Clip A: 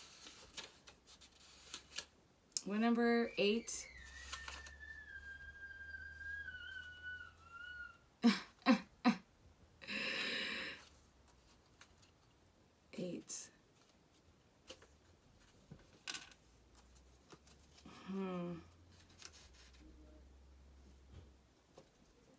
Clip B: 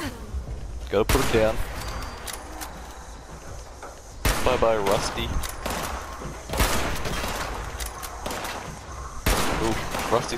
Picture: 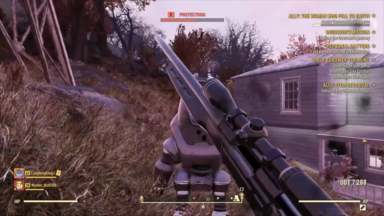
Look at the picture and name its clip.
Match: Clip B